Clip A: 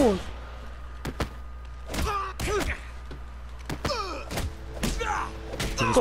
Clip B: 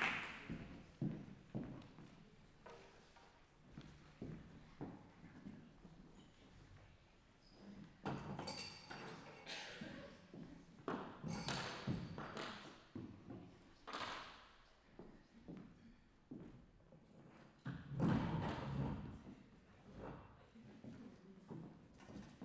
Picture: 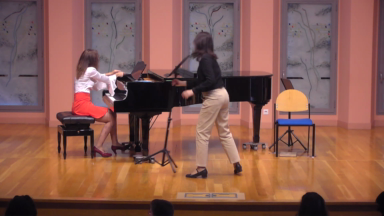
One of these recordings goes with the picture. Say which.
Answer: B